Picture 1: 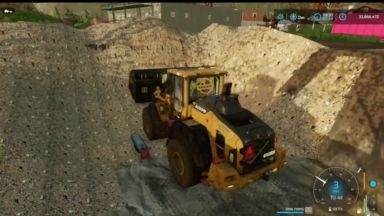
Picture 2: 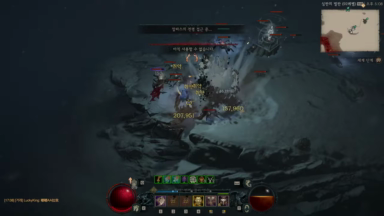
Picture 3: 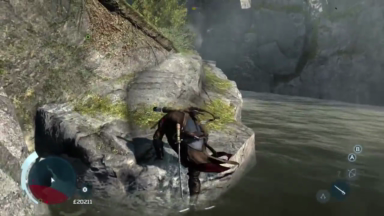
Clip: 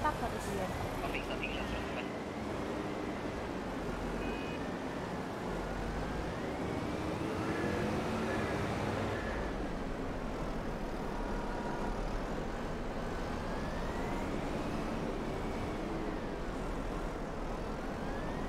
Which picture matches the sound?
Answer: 1